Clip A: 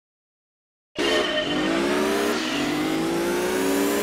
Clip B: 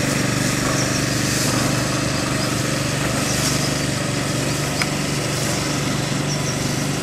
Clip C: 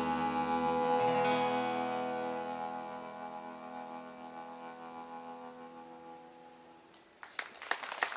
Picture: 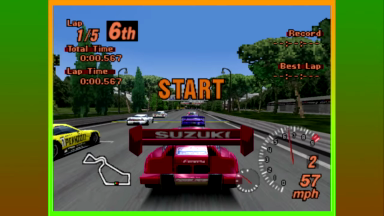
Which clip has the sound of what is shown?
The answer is A